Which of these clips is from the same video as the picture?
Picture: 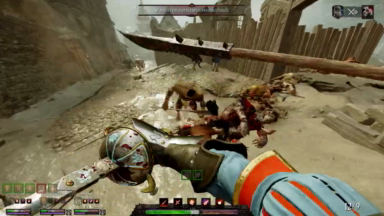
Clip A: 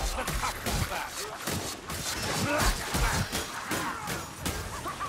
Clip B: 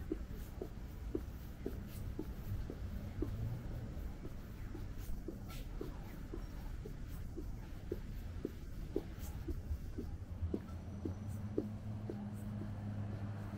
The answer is A